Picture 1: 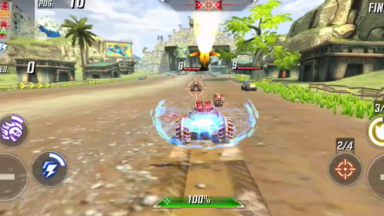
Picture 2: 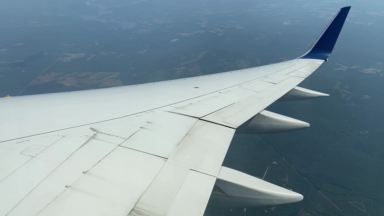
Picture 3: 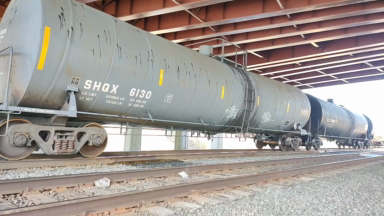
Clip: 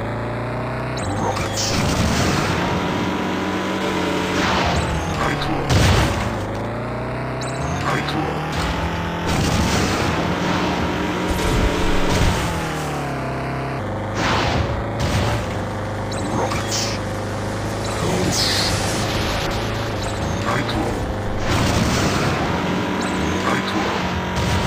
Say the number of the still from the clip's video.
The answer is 1